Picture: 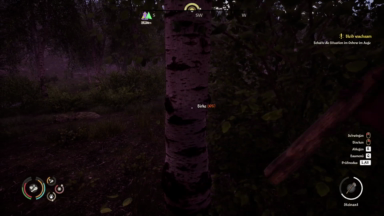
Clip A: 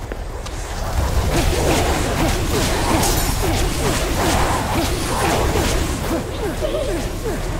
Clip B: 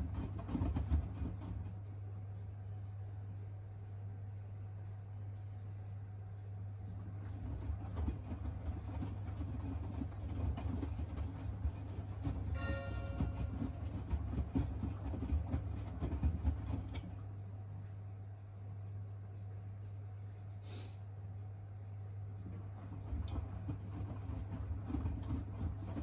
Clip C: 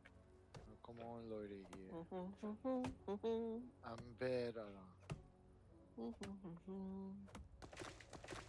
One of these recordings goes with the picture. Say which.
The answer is C